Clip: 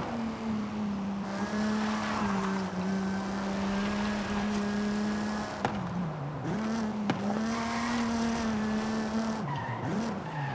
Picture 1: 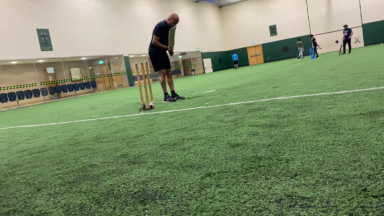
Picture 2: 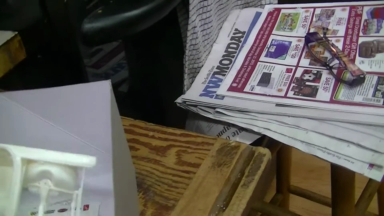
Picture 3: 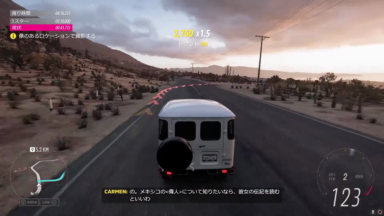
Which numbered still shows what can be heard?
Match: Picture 3